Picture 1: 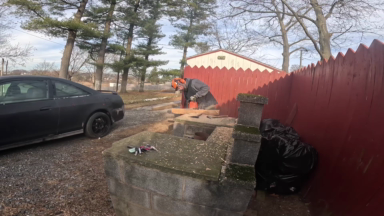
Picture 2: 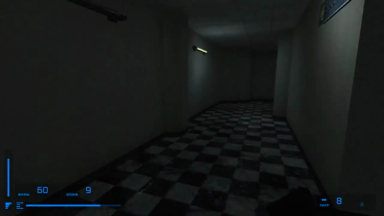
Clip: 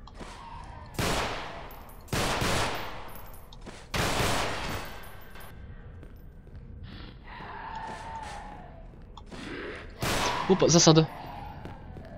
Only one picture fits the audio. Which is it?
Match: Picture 2